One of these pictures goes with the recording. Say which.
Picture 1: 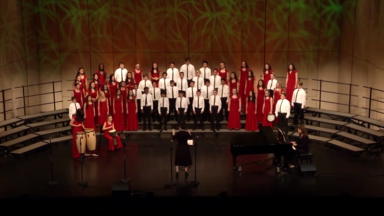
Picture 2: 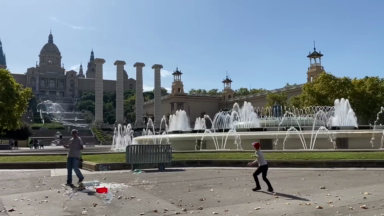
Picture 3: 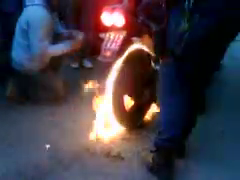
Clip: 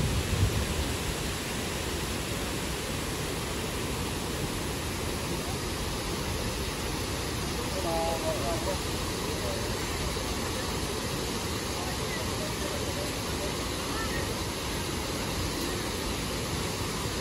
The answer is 2